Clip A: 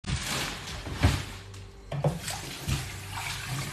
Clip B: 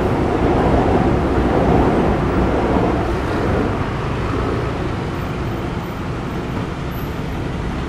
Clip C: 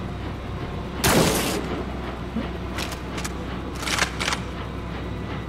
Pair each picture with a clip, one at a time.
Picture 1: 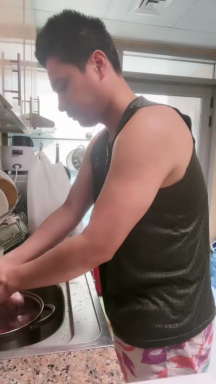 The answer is A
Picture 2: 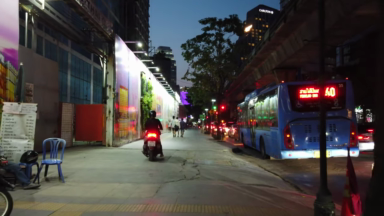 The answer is B